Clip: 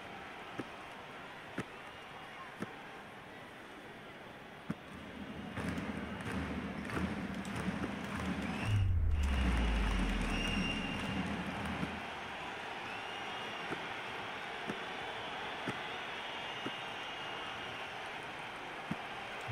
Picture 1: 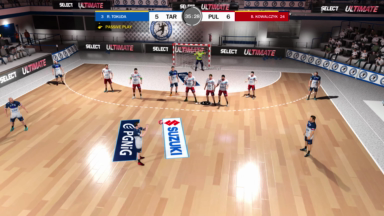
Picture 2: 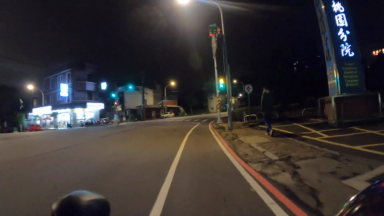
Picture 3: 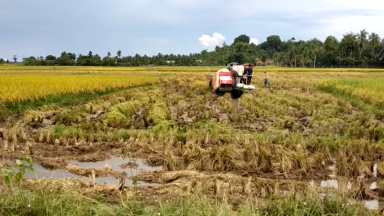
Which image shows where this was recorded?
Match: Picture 1